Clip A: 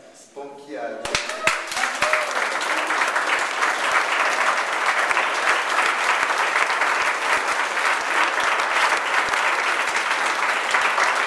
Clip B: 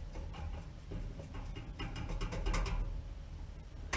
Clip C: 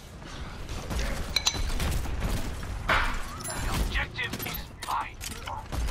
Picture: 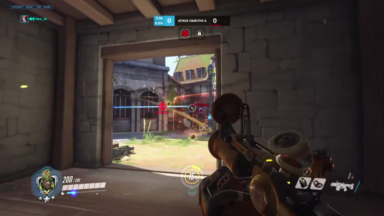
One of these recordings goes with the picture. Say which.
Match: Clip C